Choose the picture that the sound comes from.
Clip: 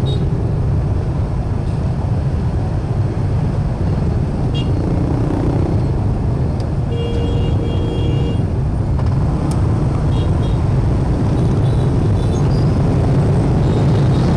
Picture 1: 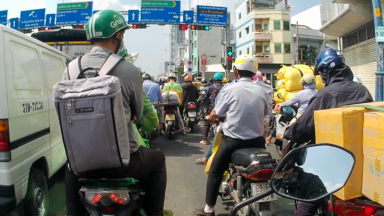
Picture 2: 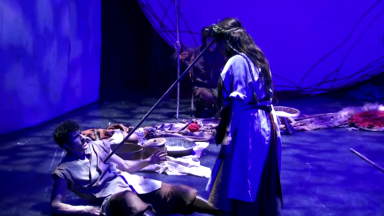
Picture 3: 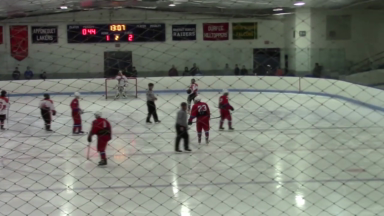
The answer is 1